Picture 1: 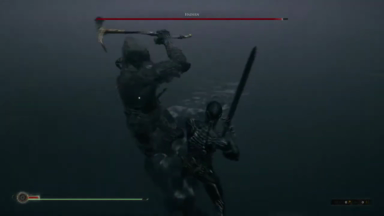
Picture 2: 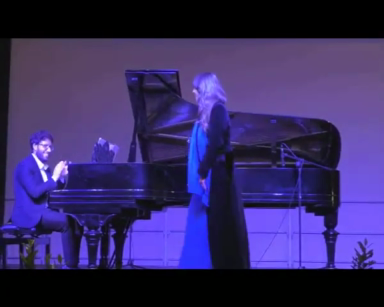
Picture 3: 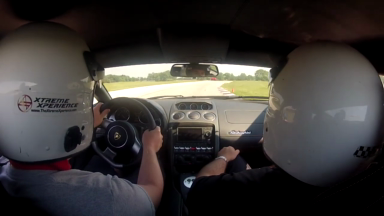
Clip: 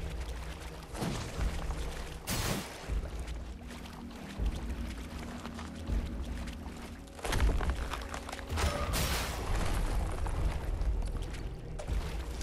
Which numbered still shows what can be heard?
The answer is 1